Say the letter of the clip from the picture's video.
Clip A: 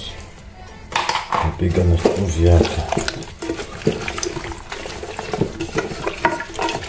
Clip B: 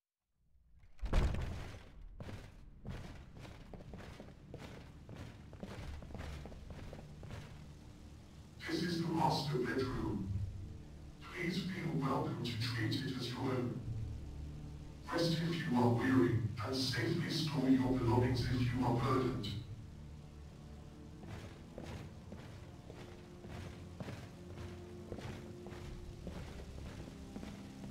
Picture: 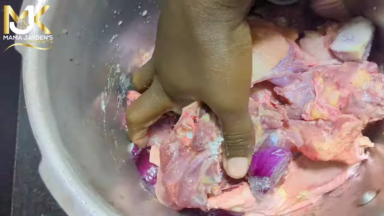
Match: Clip A